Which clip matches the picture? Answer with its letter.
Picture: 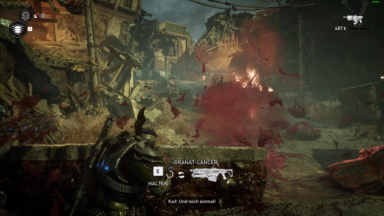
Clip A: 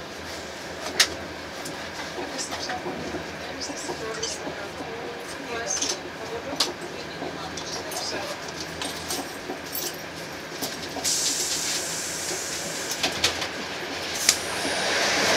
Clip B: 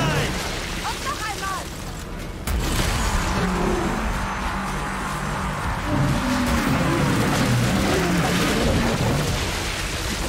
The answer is B